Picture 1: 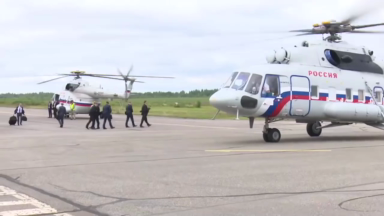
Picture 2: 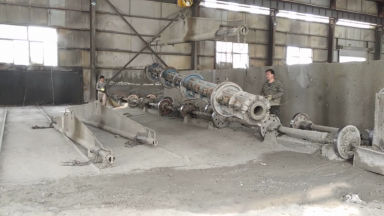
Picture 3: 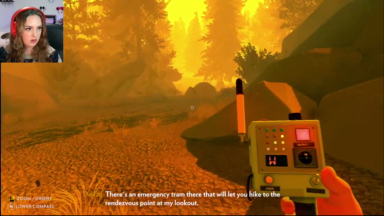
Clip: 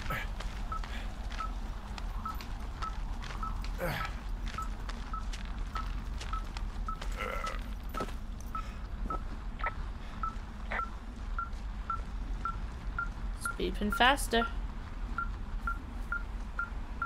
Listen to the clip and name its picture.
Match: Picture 3